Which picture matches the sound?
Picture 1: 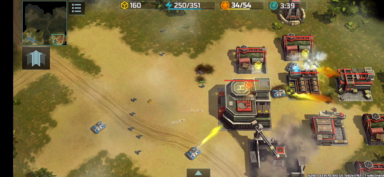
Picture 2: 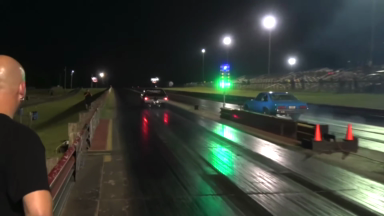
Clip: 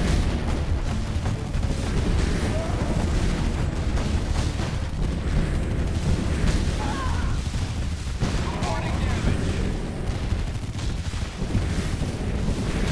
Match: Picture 1